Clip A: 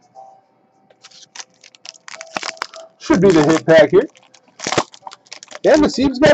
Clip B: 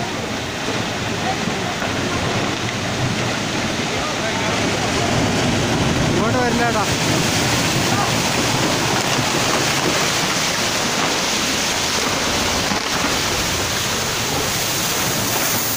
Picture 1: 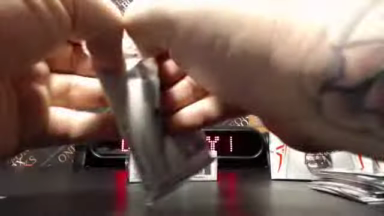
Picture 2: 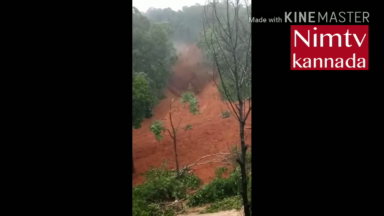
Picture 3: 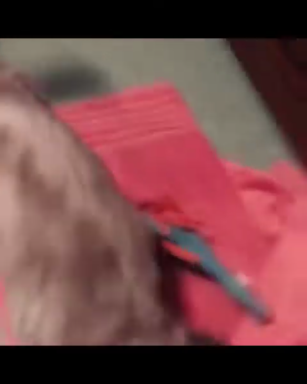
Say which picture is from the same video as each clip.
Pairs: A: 1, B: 2